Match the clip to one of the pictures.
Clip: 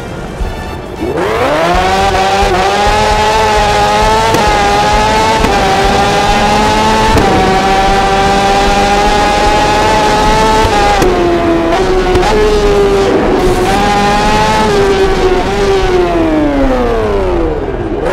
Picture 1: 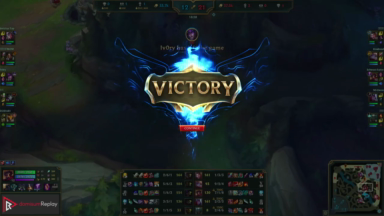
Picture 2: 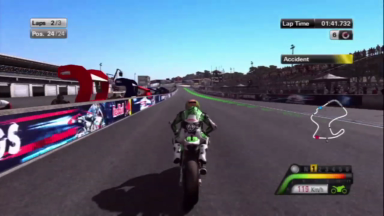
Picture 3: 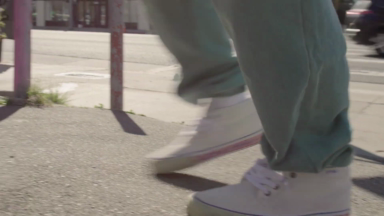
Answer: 2